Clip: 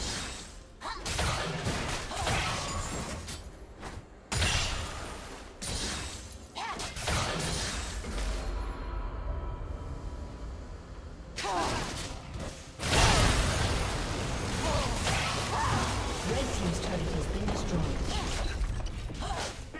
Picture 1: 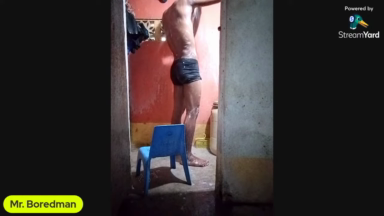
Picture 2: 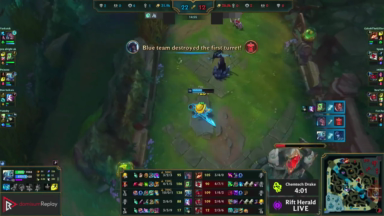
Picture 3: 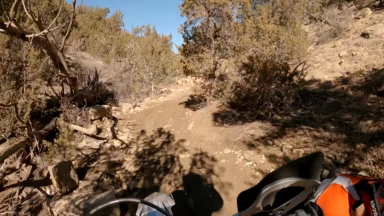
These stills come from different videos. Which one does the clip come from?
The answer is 2